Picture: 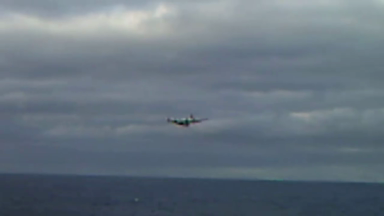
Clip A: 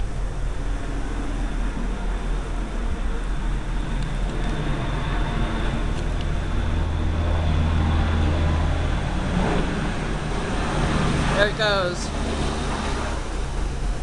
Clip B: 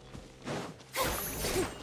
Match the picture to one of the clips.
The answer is A